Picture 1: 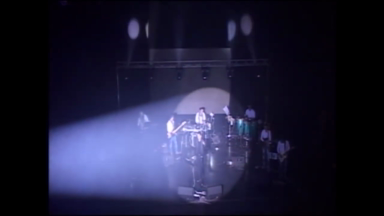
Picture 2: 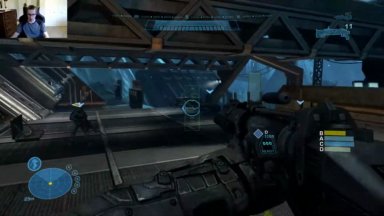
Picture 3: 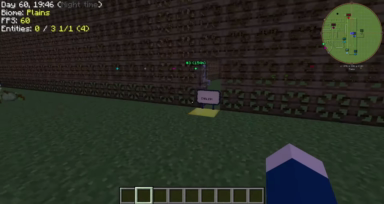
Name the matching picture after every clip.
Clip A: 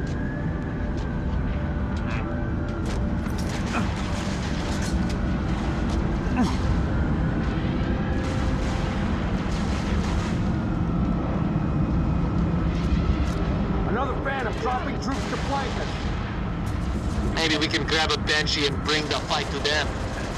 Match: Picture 2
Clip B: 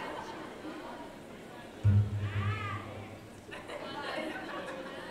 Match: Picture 1